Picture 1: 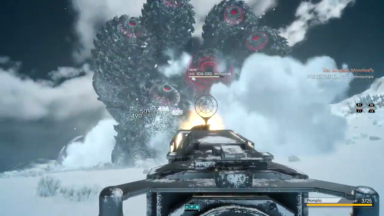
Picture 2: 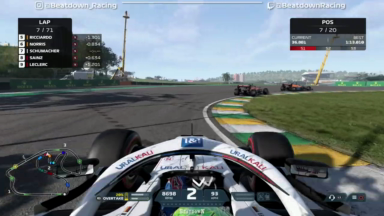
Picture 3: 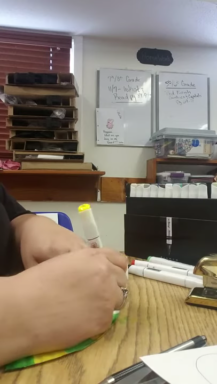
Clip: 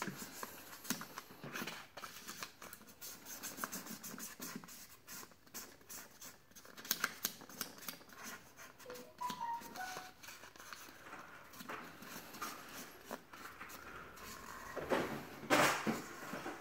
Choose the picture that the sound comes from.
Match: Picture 3